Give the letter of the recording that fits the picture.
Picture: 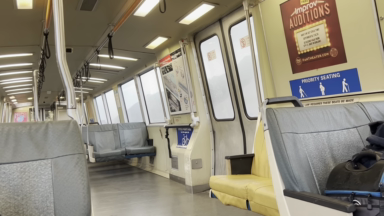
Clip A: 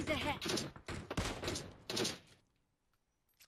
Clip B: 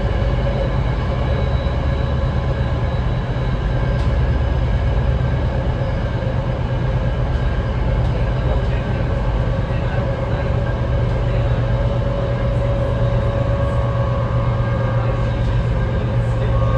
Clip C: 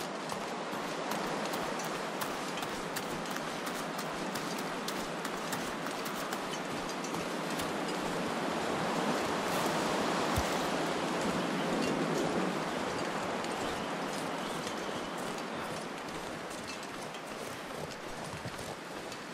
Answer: B